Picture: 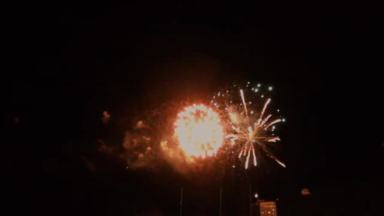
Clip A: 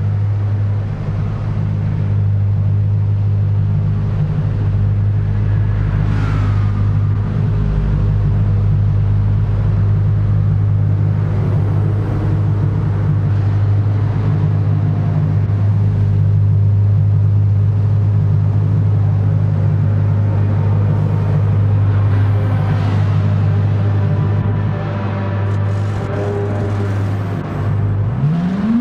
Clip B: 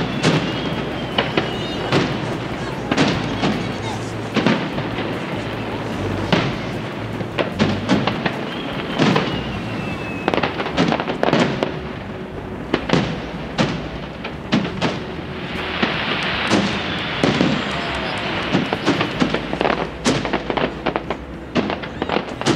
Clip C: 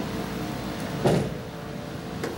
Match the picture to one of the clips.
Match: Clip B